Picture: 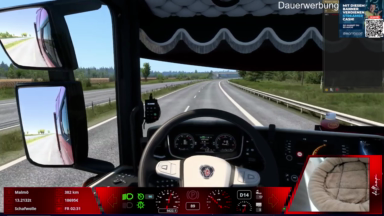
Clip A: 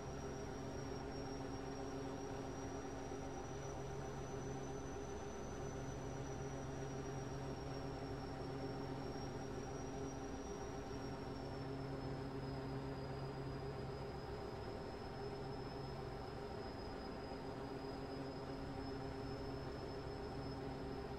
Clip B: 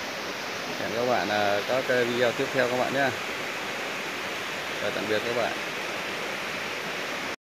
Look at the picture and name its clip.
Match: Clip A